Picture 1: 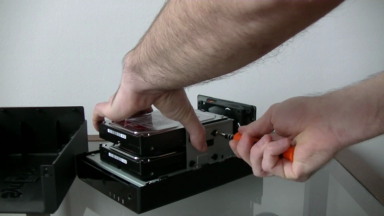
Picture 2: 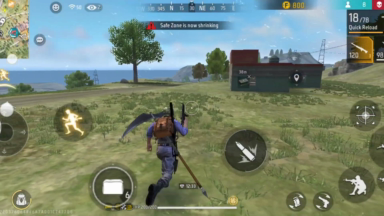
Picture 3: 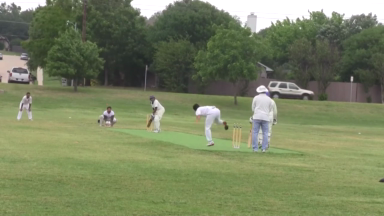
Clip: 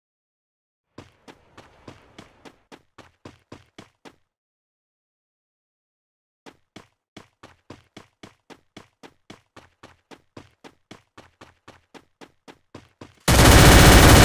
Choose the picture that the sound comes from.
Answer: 2